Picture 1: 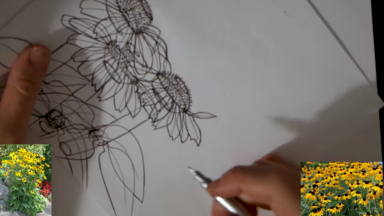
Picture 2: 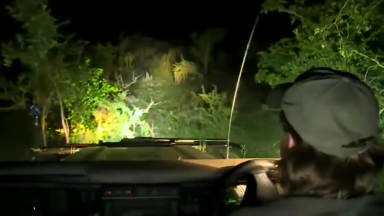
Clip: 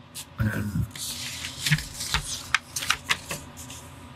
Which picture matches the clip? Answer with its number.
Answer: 1